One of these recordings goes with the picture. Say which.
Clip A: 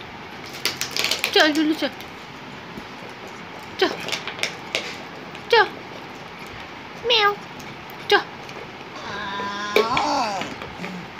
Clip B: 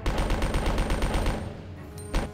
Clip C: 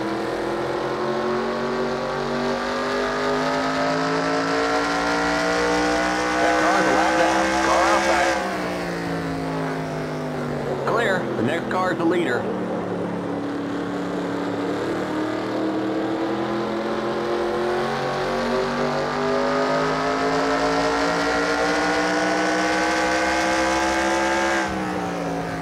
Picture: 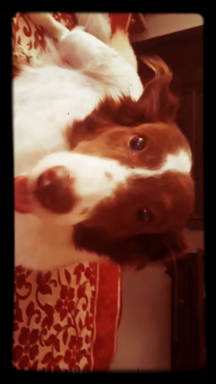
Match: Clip A